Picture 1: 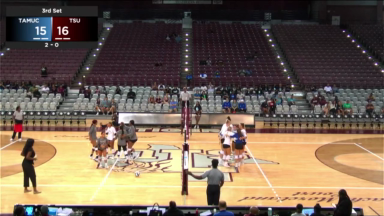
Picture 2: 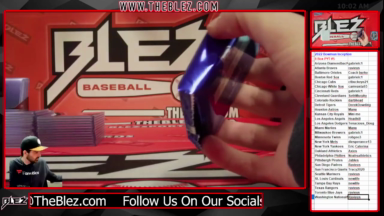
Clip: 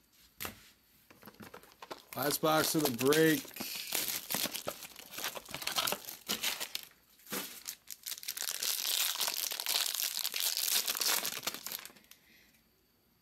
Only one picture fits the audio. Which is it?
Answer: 2